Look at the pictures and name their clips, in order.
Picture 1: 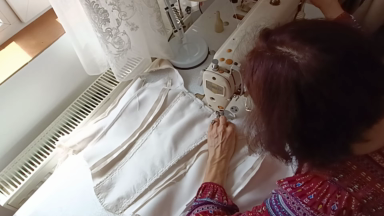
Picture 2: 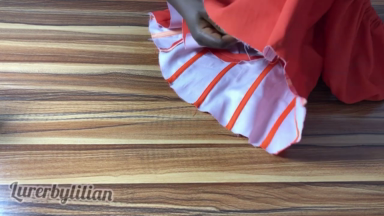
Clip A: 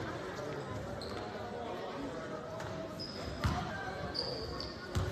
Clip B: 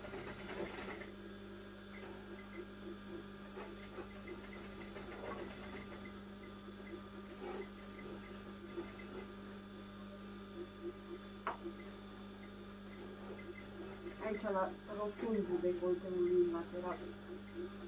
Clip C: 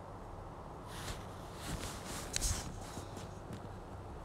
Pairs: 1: B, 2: C